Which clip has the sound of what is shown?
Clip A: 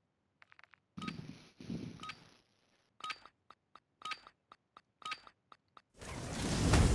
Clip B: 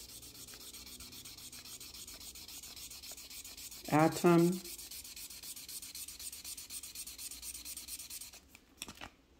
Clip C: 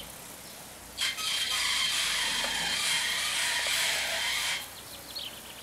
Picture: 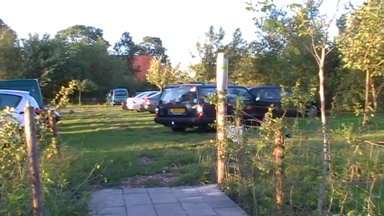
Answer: C